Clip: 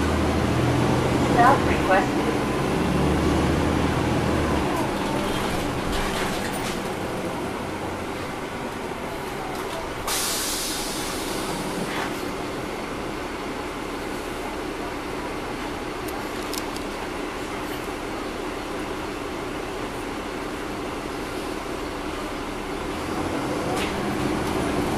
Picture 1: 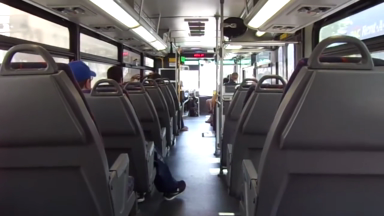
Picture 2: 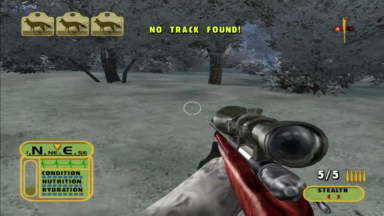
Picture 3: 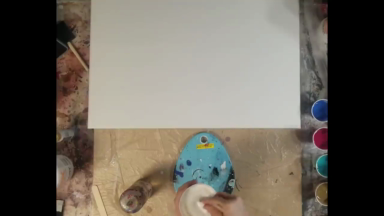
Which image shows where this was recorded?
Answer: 1